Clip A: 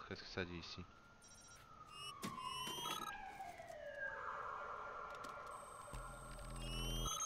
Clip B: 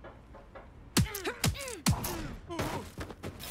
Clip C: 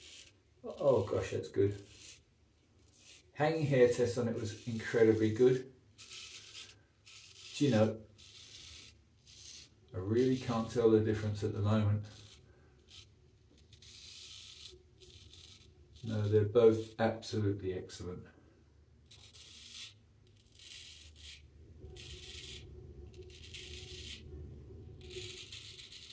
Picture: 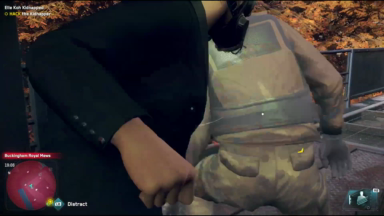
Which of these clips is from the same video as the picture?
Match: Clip B